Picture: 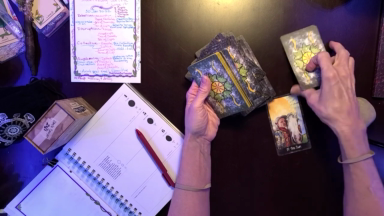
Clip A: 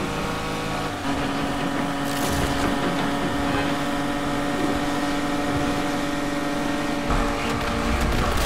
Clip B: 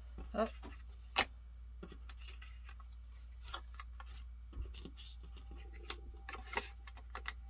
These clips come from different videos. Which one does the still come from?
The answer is B